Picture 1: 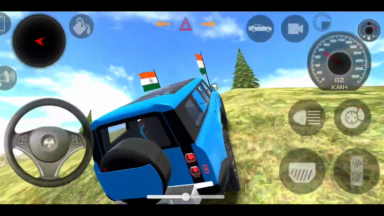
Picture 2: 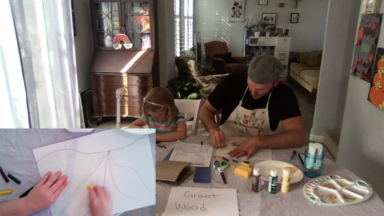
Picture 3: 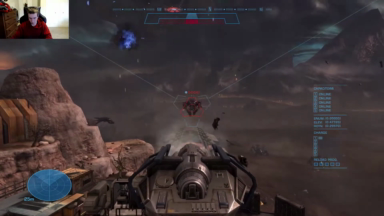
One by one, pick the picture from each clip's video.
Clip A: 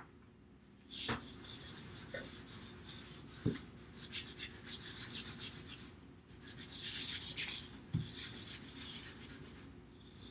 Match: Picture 2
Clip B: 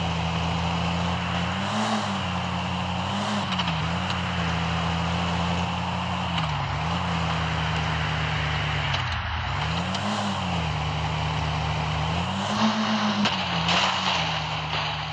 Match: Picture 1